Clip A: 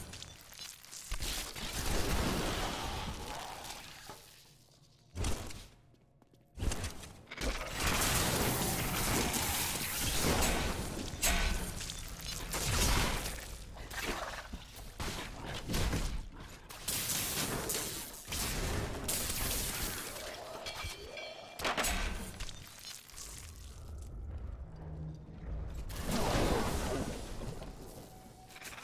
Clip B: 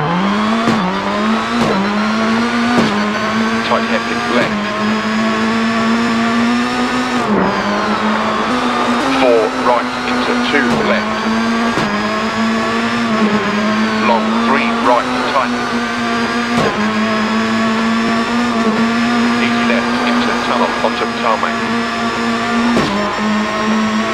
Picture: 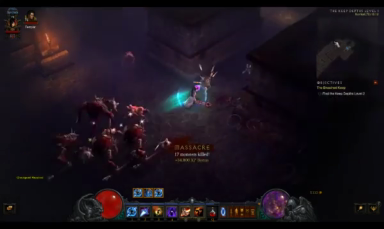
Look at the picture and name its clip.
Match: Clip A